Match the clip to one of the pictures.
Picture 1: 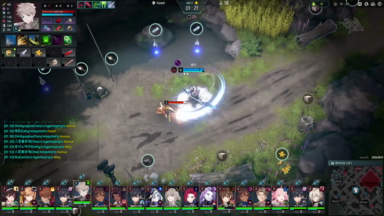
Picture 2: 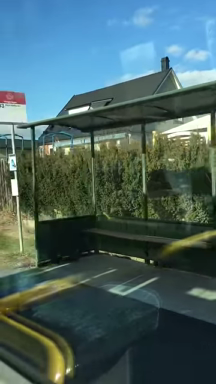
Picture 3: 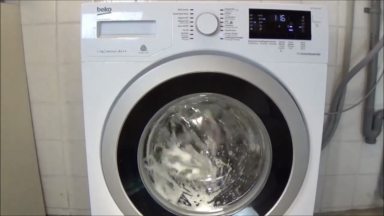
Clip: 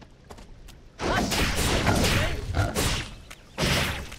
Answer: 1